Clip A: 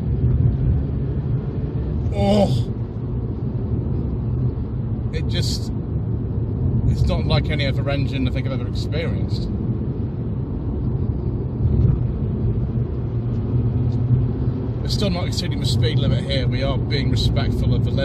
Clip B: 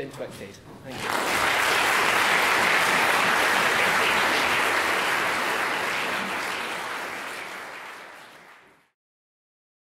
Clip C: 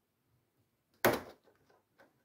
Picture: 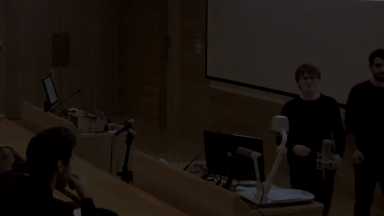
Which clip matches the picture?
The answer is B